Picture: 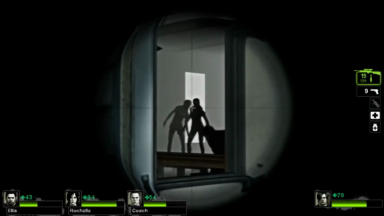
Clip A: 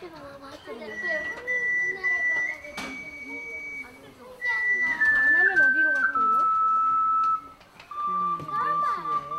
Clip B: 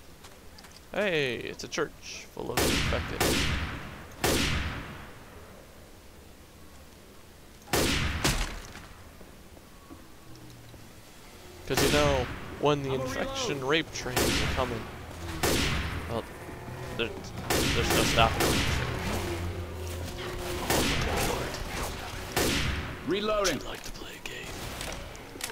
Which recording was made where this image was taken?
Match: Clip B